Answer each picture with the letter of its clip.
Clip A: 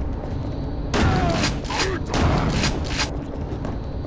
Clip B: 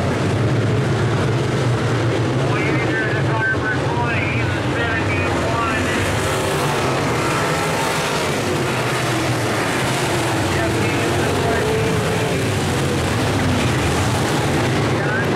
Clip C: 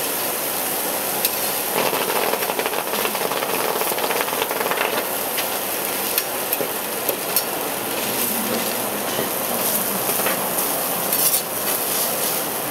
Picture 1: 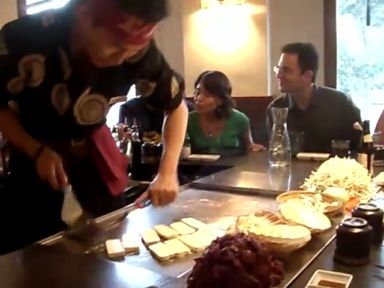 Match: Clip C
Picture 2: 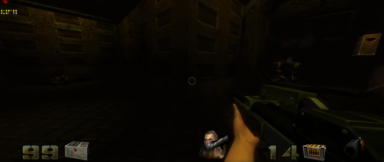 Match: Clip A